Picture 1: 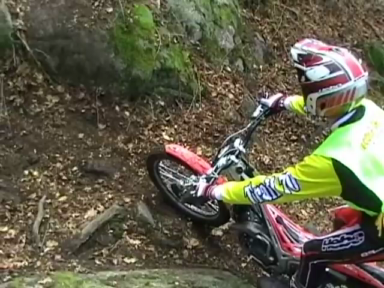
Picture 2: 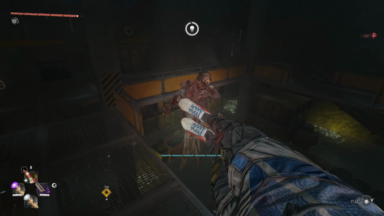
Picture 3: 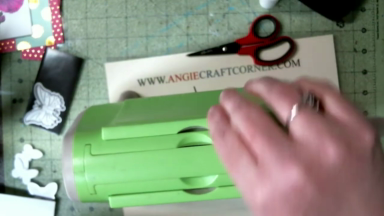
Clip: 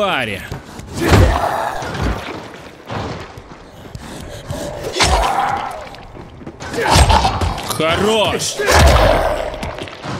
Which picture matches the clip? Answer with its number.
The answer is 2